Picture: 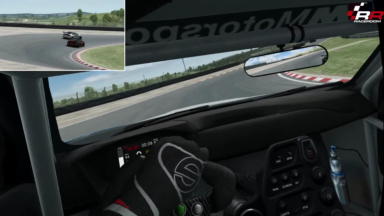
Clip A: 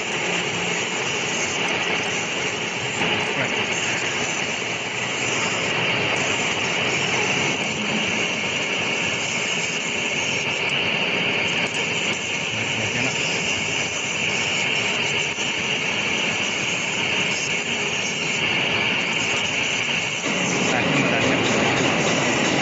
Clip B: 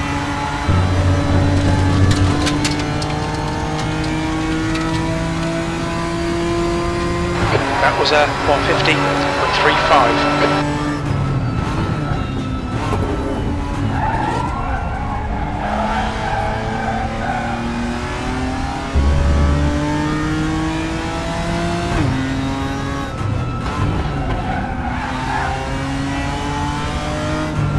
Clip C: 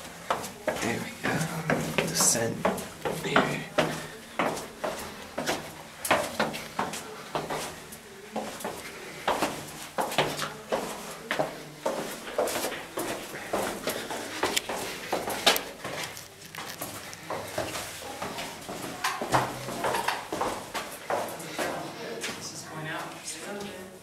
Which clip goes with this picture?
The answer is B